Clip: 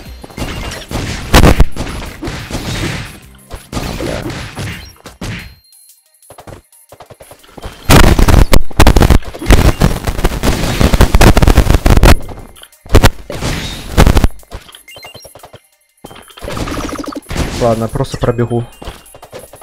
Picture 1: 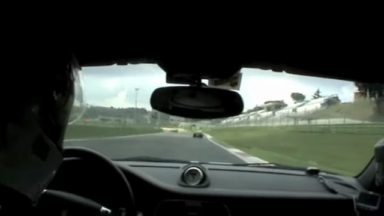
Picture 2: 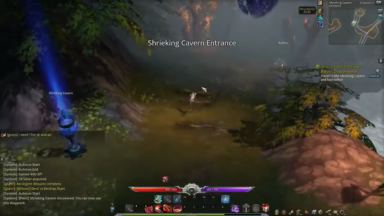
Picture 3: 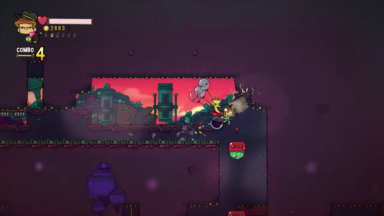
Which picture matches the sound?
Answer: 3